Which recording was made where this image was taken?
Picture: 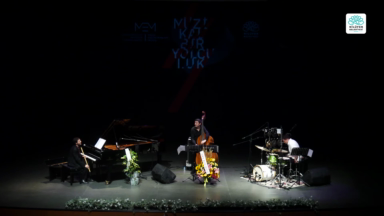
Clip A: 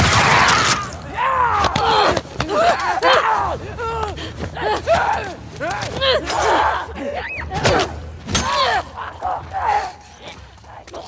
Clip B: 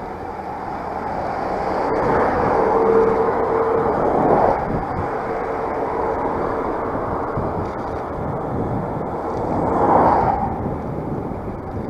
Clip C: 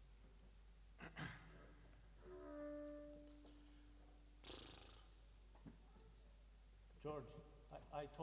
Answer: C